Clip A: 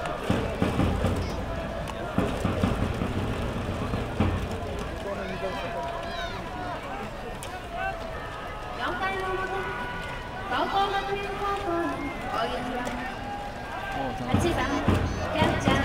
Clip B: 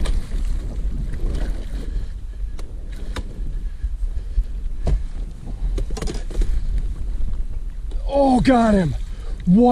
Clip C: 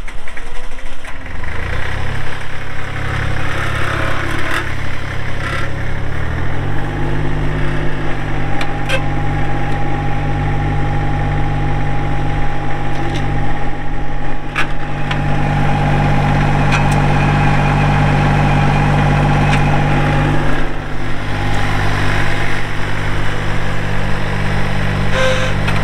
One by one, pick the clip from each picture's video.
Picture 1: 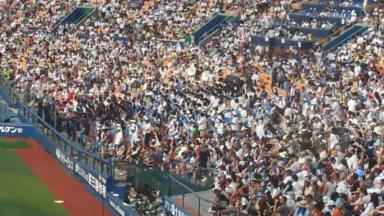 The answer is A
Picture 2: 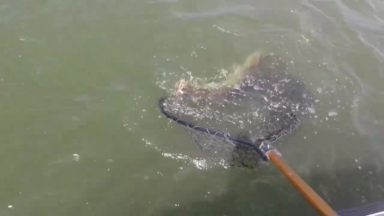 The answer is B